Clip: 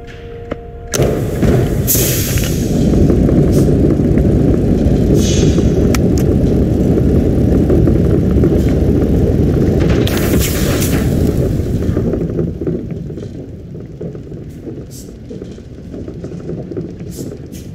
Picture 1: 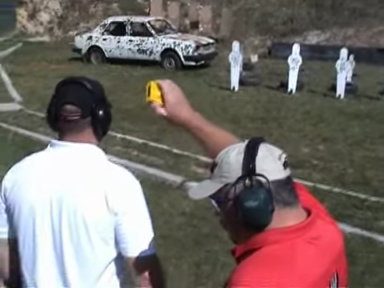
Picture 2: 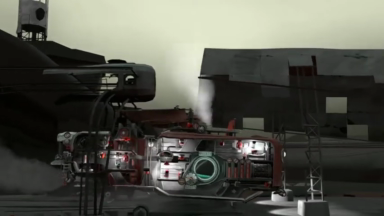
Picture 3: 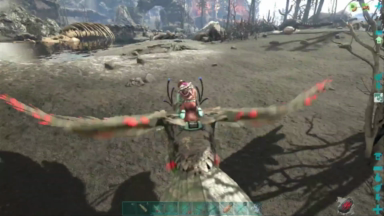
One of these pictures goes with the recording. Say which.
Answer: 2